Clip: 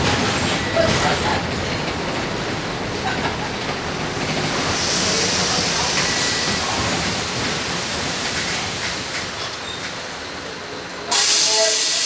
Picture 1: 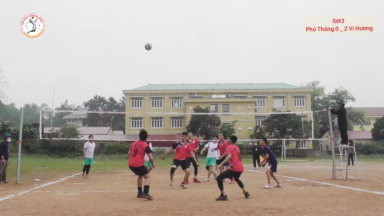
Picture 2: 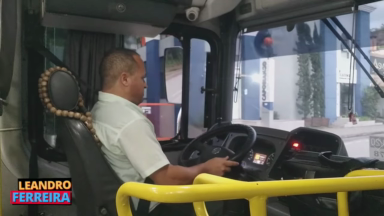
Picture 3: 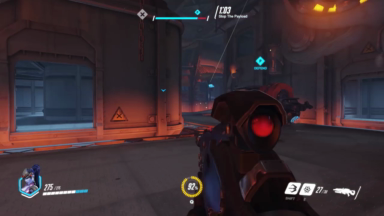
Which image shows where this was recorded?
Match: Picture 2